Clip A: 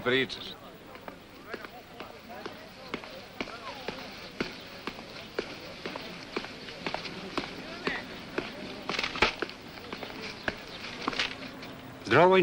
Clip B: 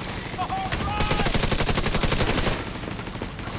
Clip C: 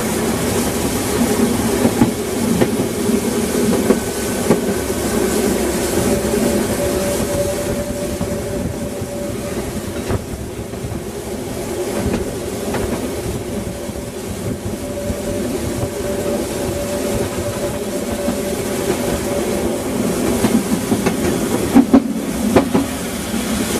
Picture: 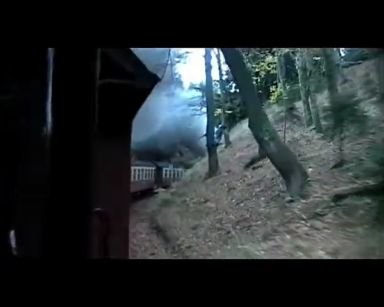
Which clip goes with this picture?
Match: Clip C